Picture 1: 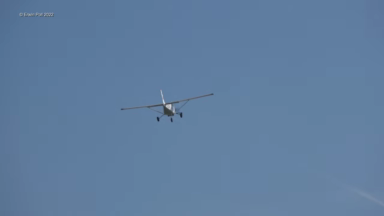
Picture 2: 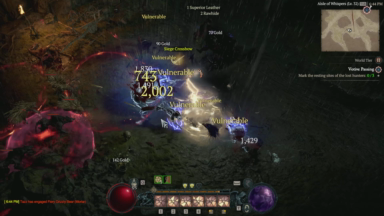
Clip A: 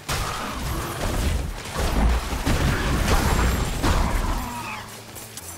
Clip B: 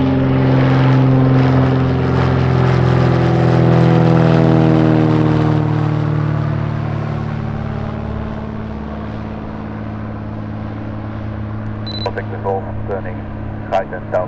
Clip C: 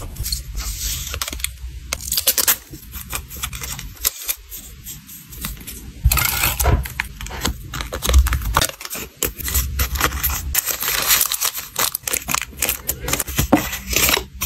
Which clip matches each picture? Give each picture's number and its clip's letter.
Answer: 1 B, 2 A